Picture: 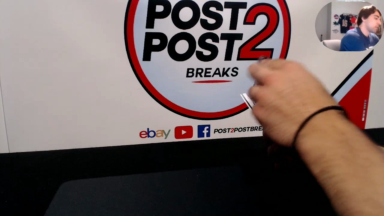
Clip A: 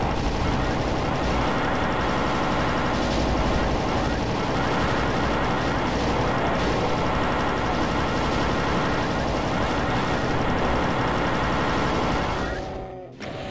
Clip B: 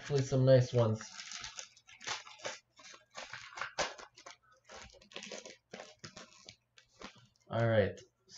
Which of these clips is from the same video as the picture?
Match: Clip B